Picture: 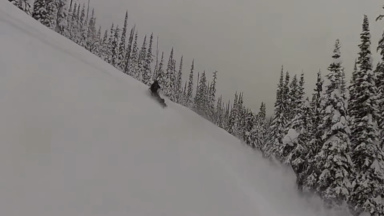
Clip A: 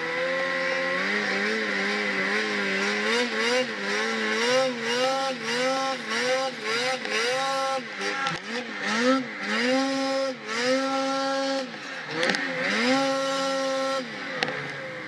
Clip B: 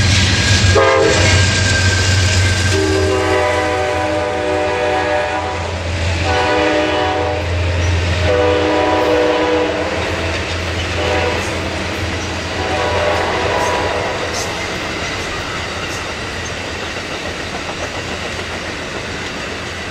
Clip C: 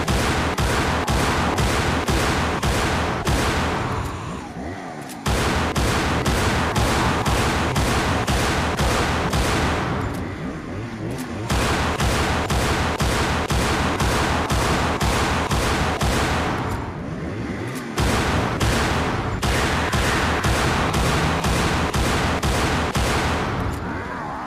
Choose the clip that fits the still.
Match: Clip A